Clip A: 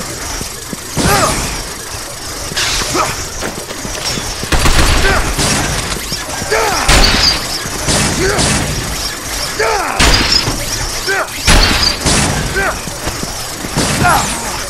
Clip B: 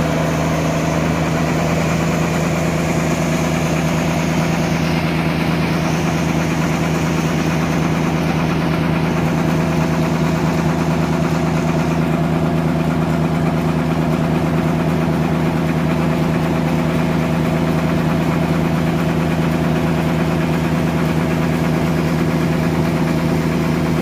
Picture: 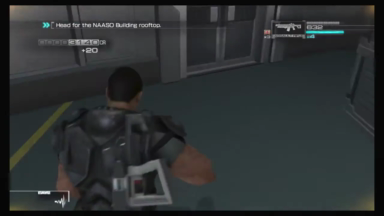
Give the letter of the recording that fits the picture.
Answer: A